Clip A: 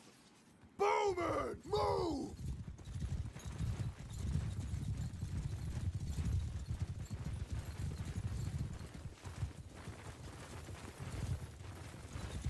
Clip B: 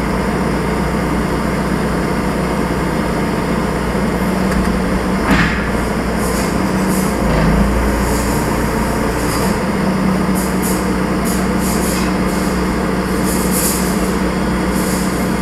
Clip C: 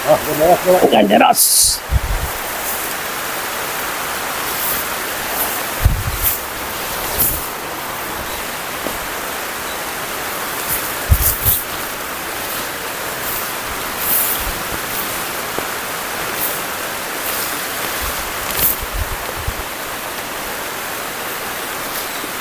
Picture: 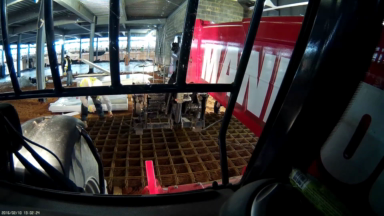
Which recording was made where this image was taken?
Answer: B